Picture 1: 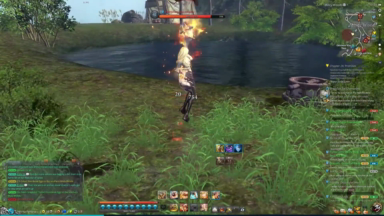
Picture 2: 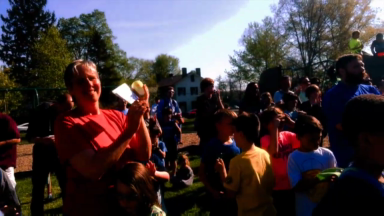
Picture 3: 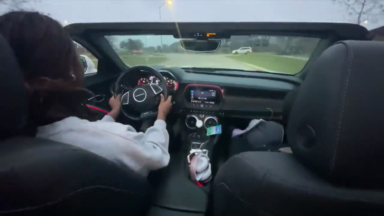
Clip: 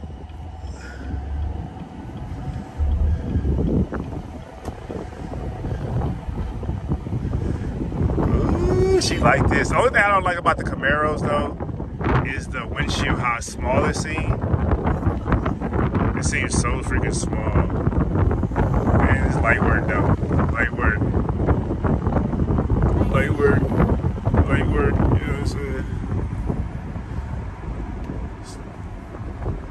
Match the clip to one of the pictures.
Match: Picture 3